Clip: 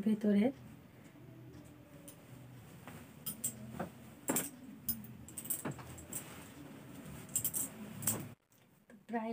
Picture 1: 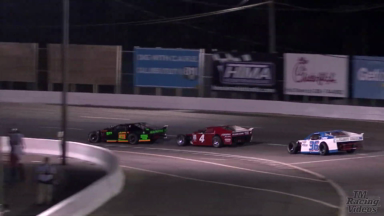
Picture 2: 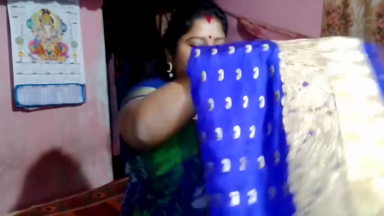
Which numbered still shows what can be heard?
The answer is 2